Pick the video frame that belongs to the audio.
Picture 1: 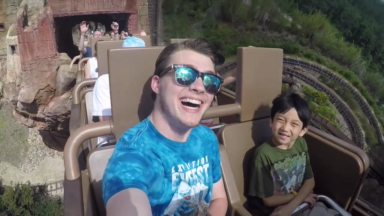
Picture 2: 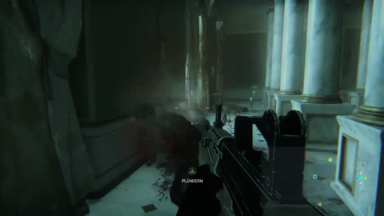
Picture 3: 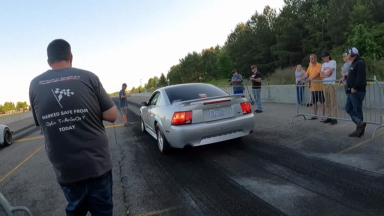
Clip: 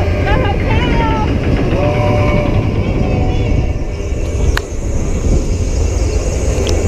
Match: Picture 1